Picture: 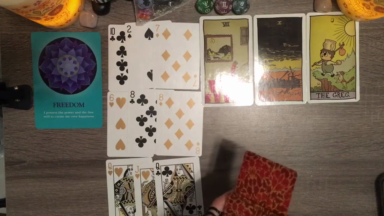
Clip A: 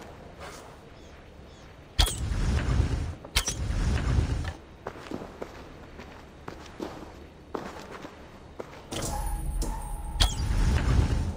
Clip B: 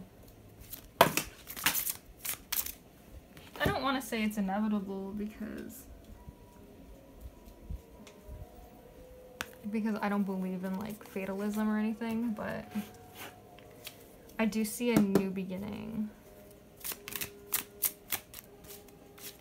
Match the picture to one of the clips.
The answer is B